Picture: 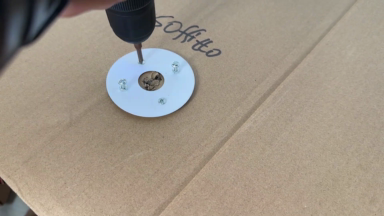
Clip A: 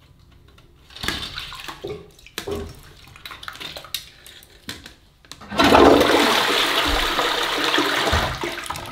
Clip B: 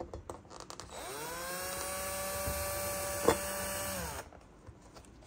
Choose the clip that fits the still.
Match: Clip B